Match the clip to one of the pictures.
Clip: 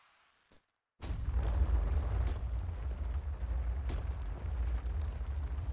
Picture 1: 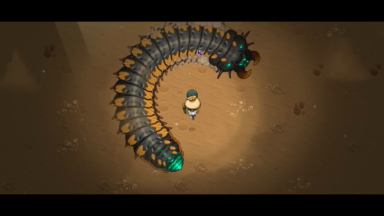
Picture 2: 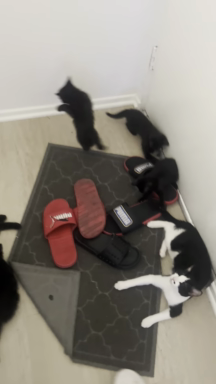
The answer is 1